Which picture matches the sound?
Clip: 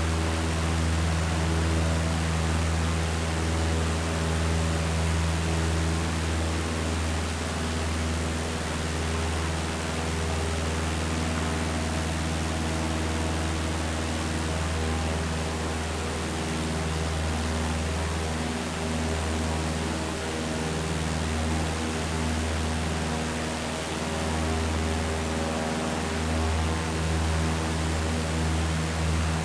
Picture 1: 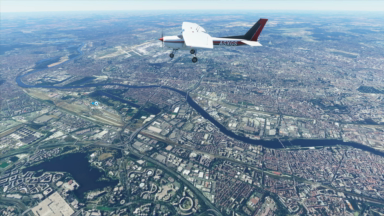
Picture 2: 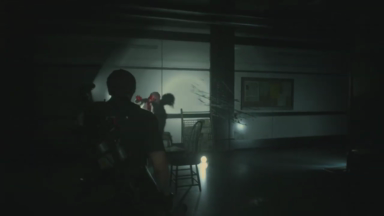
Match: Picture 1